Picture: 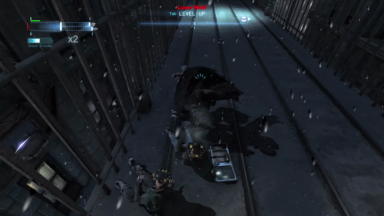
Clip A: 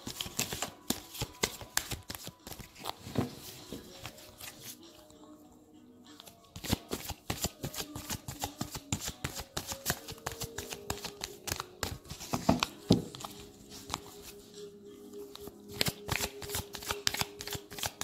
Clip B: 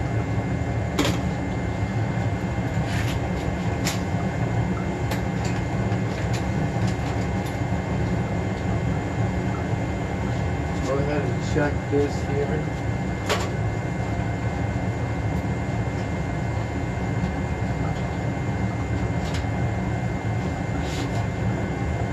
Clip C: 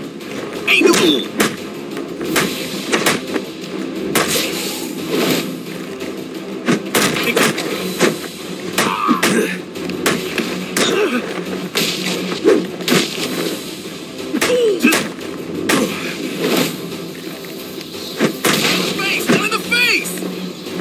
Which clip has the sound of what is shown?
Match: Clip C